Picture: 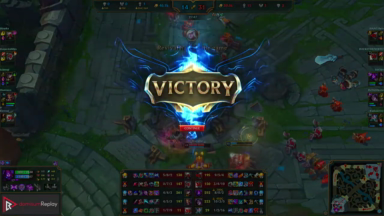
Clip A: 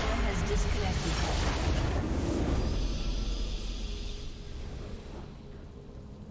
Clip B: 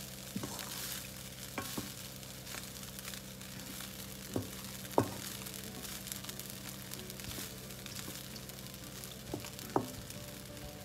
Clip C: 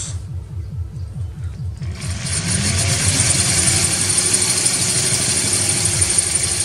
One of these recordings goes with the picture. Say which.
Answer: A